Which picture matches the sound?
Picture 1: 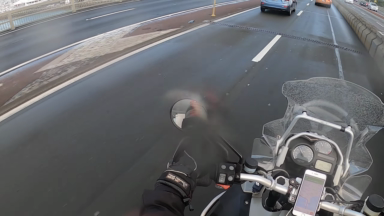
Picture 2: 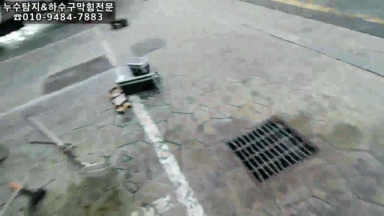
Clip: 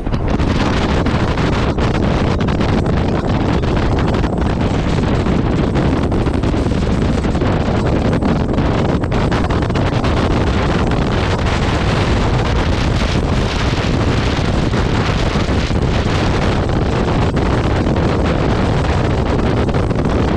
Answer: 1